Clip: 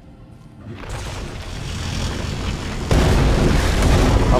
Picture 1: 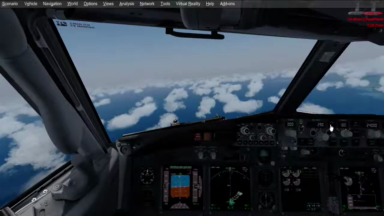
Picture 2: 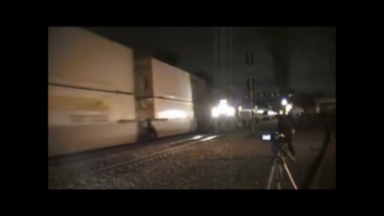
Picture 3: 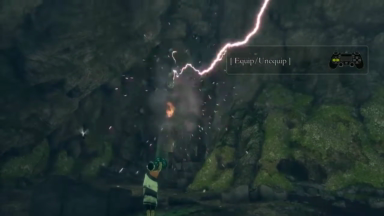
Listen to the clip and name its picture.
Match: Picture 3